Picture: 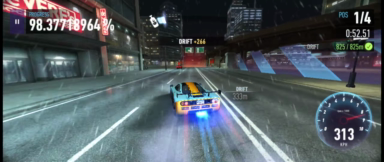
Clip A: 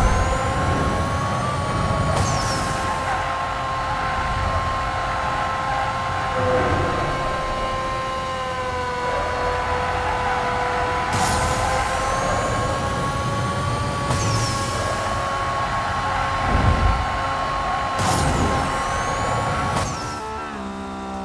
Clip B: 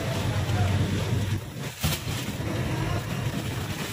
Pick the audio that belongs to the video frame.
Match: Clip A